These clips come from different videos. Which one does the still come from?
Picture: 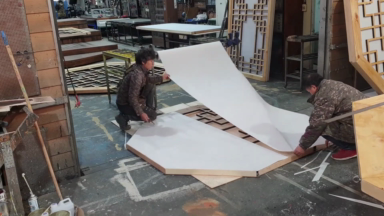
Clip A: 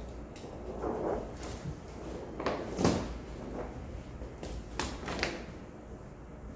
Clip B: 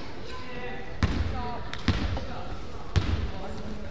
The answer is A